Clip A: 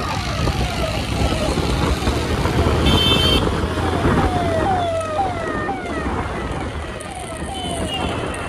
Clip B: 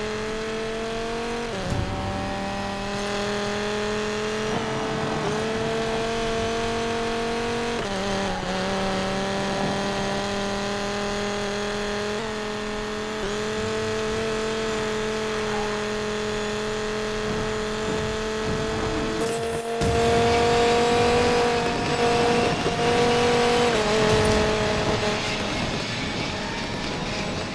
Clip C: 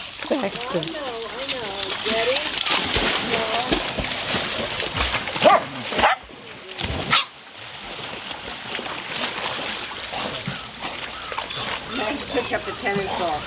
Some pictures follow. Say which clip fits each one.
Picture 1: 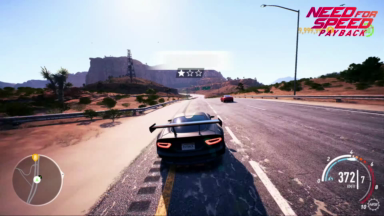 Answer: B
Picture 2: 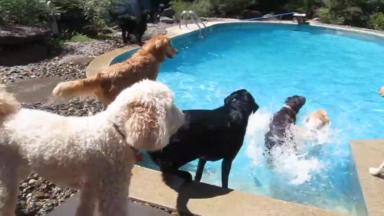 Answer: C